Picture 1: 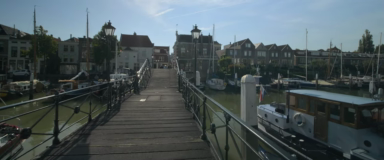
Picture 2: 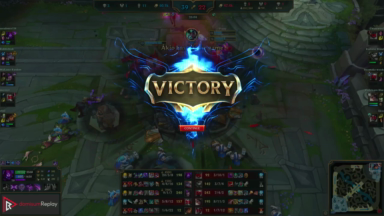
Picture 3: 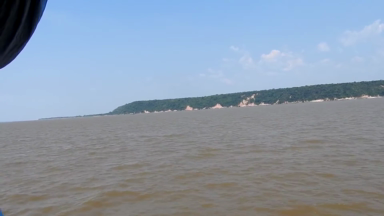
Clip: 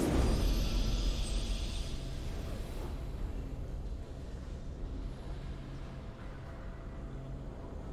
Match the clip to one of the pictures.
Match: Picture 2